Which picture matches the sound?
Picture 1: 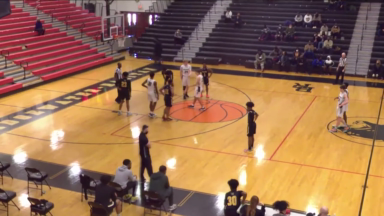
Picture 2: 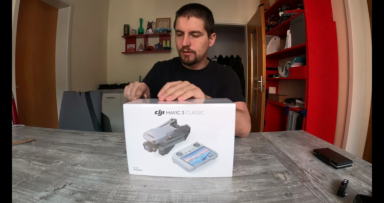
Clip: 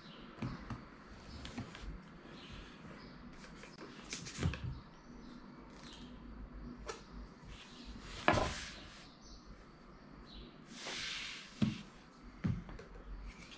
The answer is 2